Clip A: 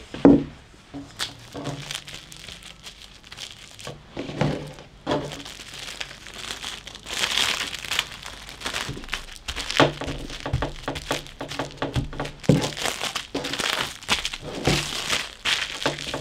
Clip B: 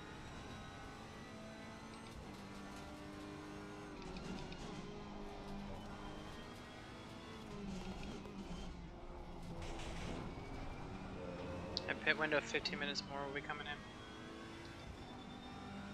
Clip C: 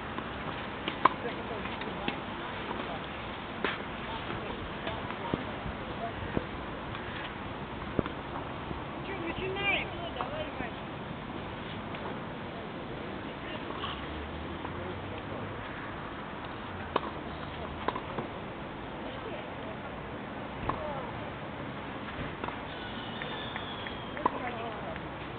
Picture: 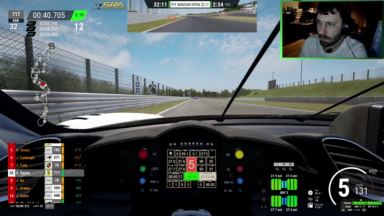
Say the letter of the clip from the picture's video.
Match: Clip B